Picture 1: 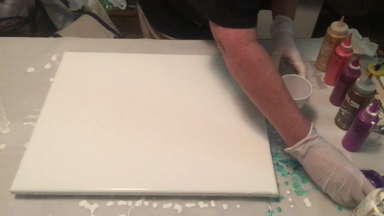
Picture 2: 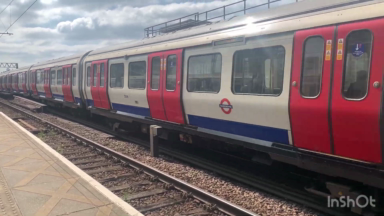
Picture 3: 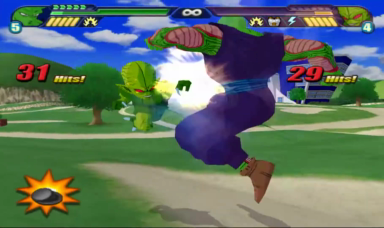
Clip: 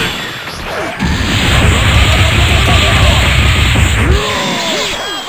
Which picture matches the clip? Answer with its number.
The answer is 3